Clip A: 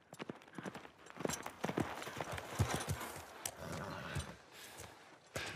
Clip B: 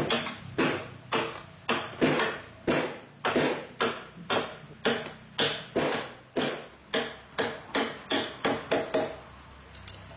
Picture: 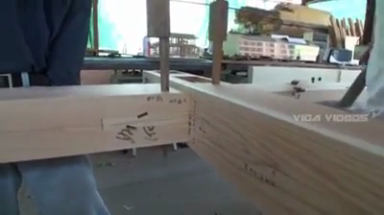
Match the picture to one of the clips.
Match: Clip B